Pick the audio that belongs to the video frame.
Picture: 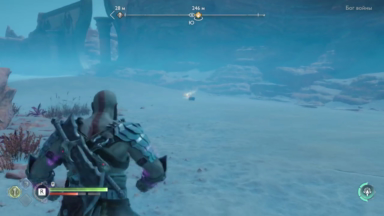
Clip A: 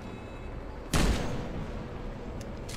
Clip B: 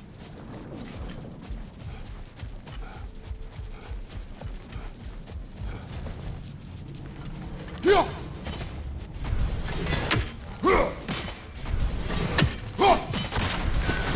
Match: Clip B